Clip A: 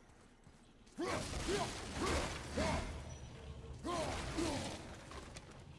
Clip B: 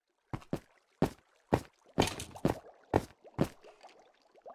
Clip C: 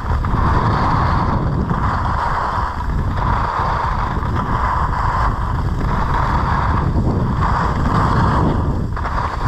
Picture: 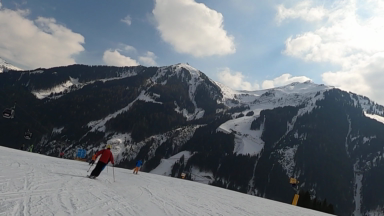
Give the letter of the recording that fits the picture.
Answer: C